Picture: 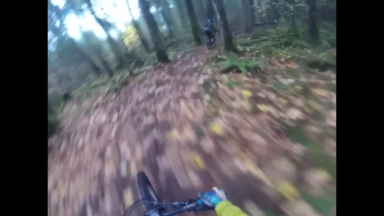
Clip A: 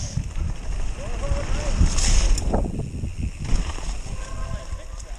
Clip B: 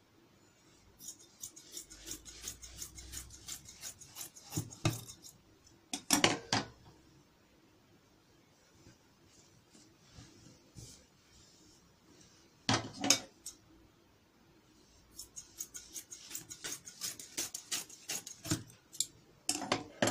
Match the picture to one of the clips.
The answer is A